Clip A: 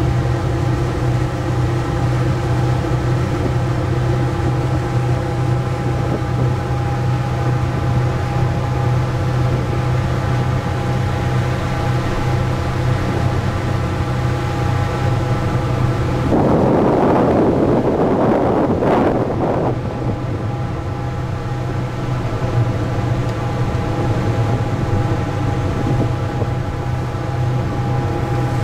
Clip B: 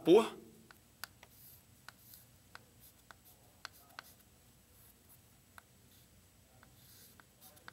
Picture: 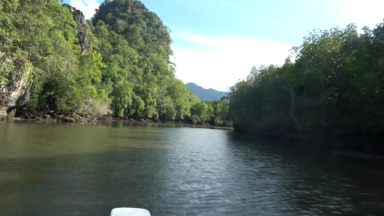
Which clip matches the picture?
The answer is A